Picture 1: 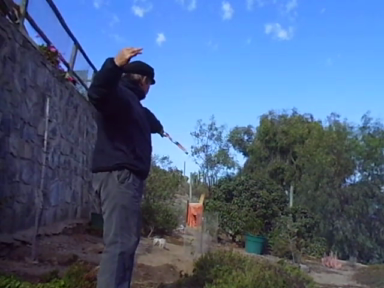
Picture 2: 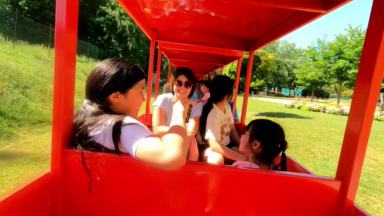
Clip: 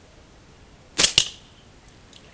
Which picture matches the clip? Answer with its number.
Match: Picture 1